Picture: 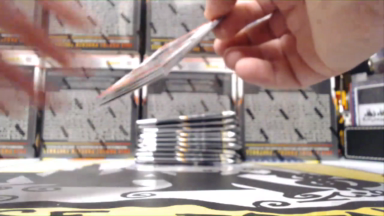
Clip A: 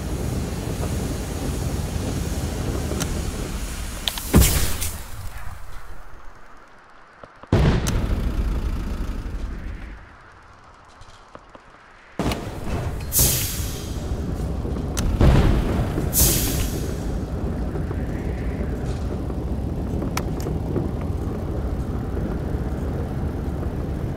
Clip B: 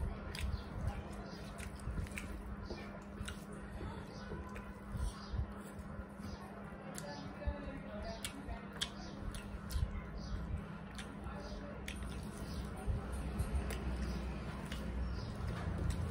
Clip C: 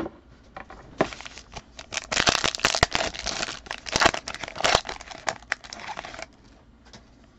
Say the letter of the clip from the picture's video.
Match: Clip C